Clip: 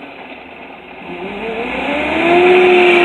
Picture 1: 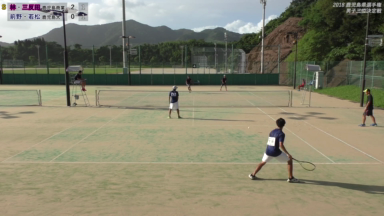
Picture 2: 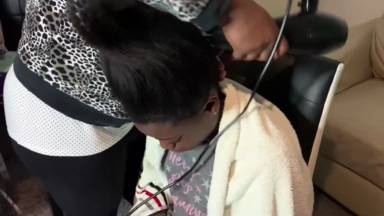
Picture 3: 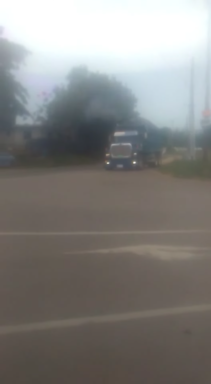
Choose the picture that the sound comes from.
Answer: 3